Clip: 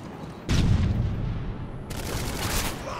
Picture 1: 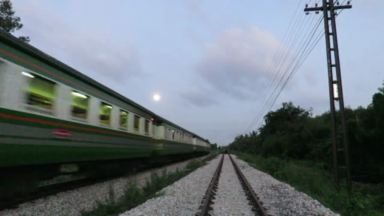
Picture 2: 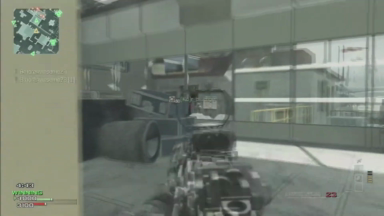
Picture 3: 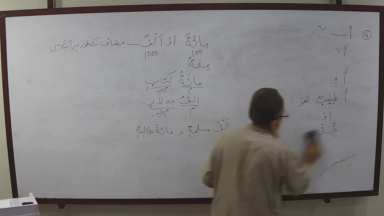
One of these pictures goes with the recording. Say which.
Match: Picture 2